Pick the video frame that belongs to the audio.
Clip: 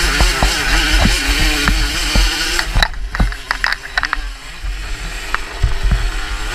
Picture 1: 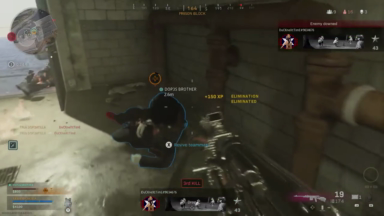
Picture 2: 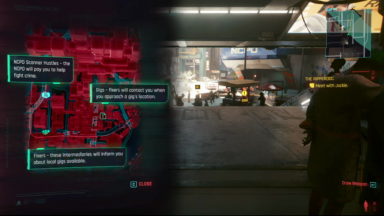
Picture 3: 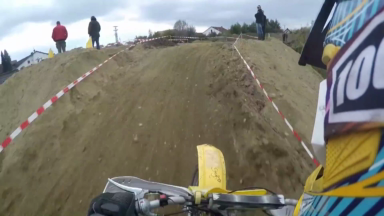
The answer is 3